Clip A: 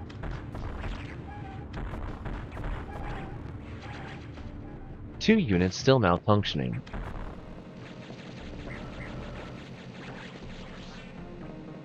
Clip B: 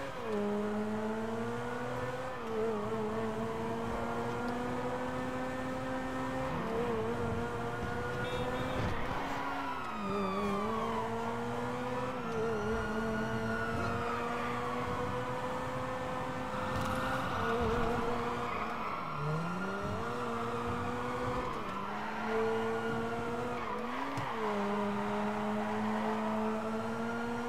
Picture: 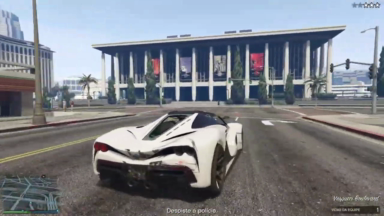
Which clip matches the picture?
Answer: B